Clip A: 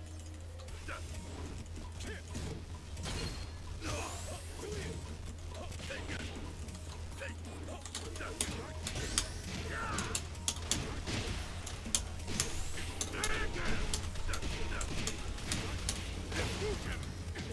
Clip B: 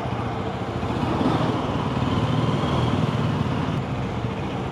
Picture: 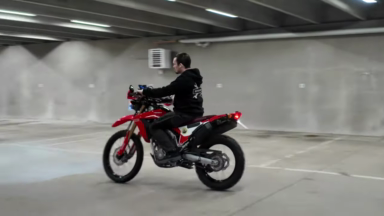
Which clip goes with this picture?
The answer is B